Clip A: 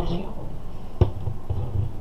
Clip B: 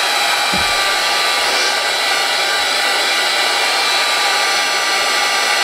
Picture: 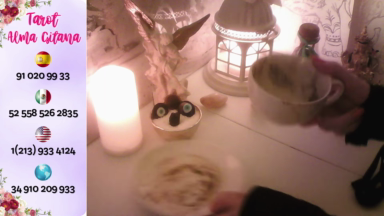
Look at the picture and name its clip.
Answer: A